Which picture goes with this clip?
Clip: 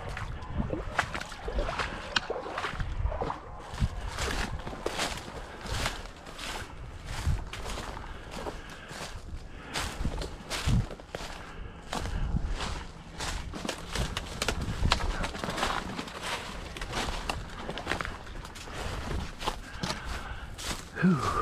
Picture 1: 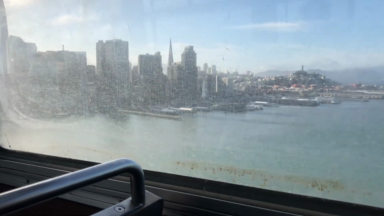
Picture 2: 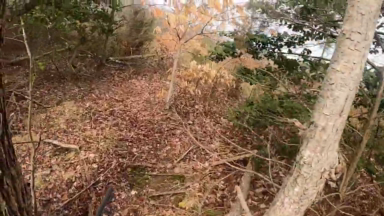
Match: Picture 2